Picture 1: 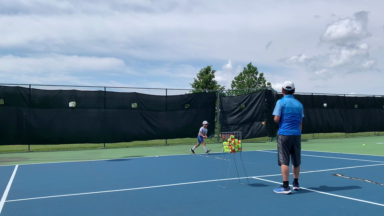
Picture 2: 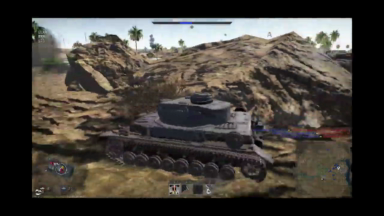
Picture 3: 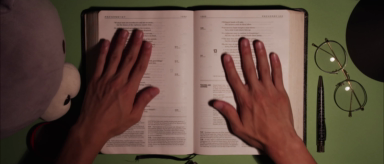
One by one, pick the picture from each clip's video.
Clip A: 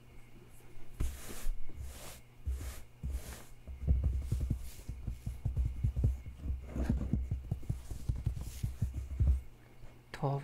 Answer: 3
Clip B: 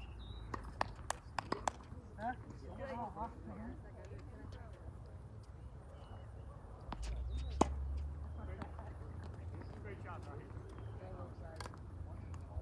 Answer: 1